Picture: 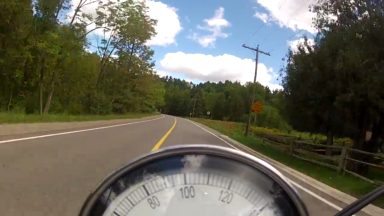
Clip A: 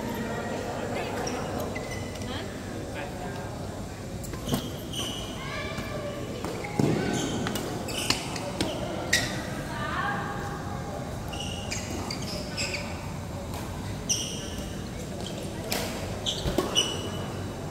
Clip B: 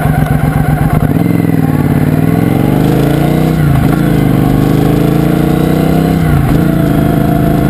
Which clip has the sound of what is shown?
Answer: B